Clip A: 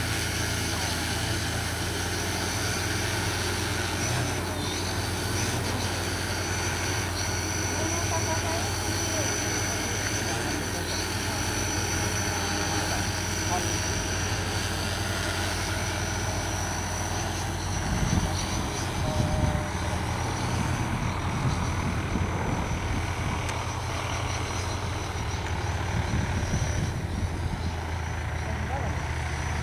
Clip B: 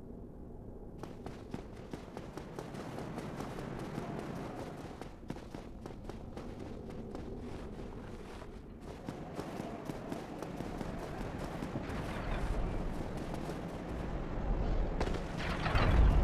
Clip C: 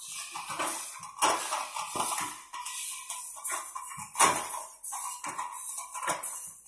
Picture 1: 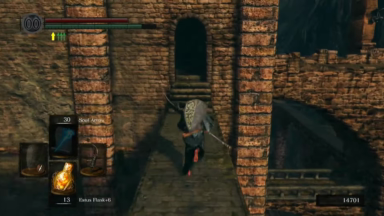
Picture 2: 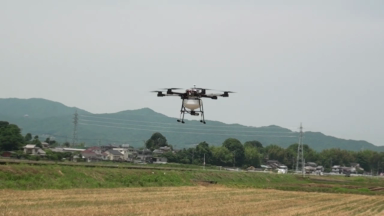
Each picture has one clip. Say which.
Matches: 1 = B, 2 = A